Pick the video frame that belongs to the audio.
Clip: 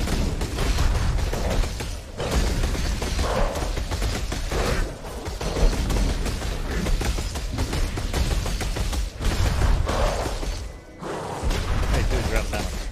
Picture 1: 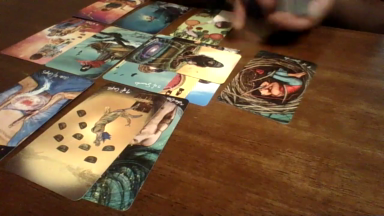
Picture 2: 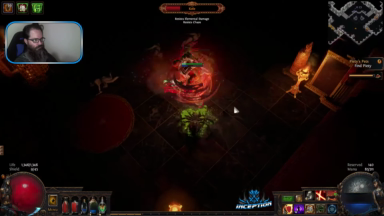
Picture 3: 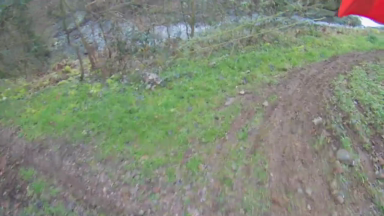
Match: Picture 2